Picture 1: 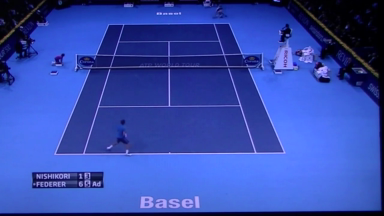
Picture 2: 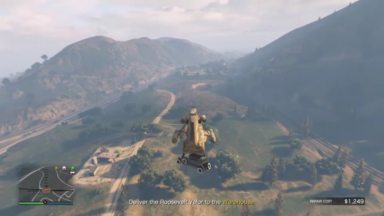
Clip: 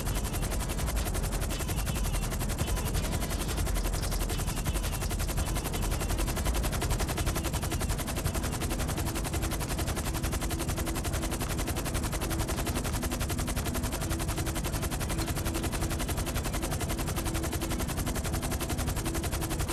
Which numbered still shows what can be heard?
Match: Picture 2